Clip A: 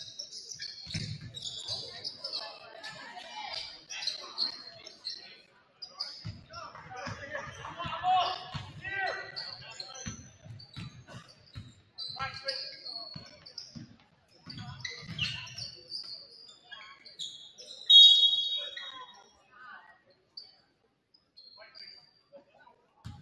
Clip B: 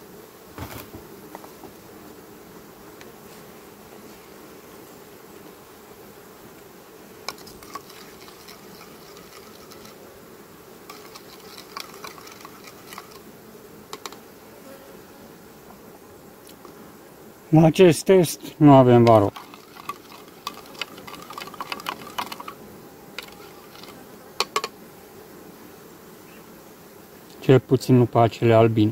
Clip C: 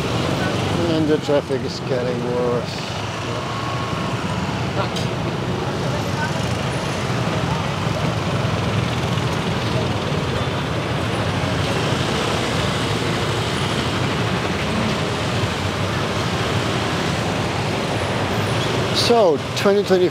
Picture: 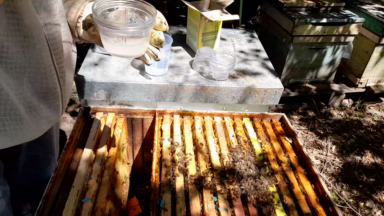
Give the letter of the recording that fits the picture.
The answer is B